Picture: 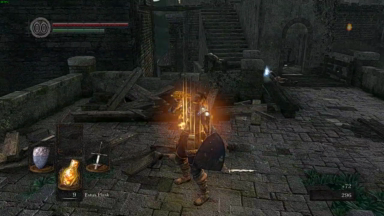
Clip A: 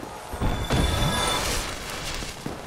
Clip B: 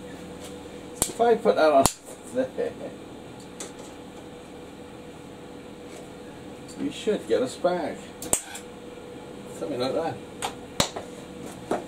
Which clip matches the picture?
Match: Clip A